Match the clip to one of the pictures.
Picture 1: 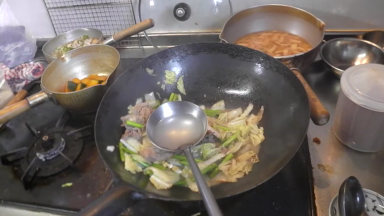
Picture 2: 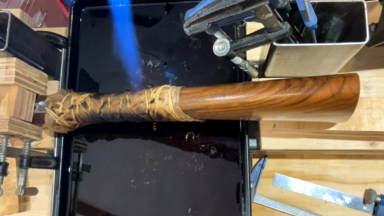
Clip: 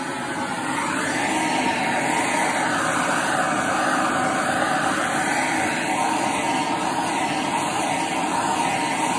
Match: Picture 2